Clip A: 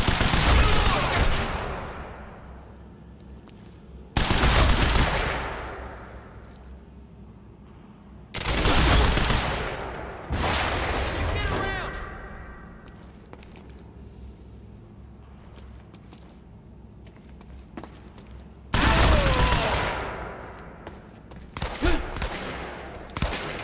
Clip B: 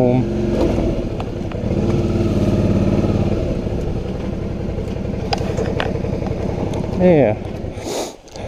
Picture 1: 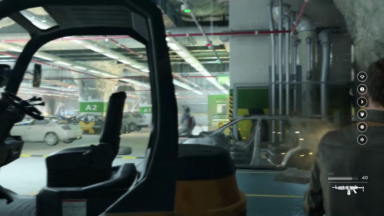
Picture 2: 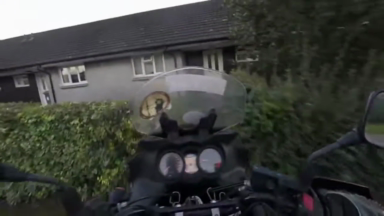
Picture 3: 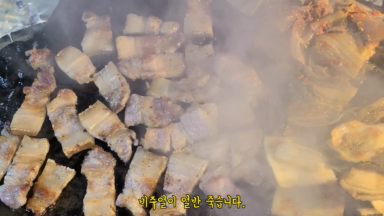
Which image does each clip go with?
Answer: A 1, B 2